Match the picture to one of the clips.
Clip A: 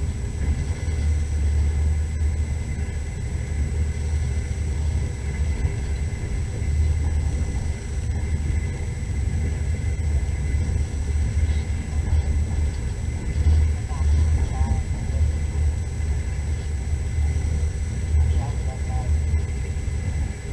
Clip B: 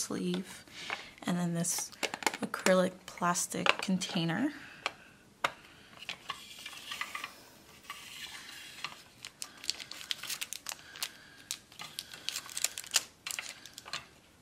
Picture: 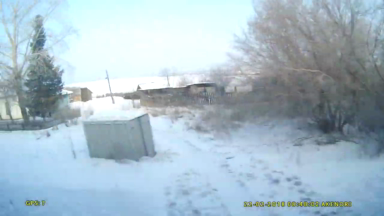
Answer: A